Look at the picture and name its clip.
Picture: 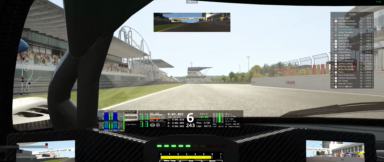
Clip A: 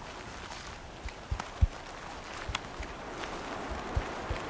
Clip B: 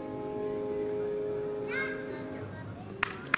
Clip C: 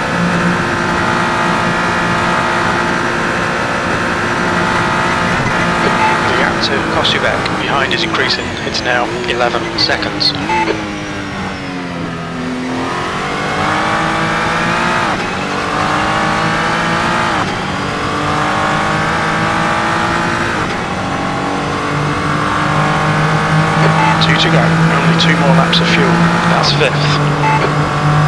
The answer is C